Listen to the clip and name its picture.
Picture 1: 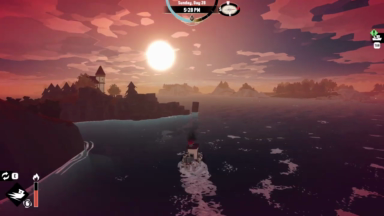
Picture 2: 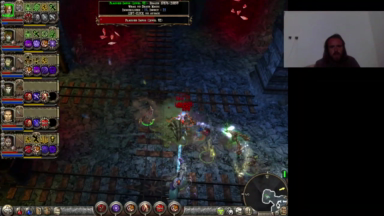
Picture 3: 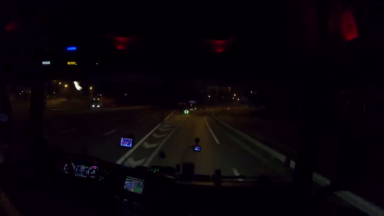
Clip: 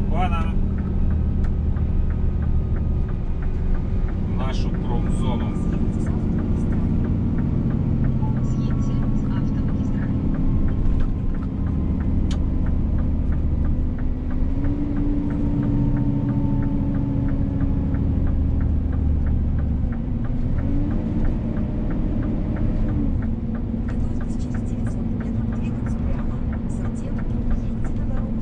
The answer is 3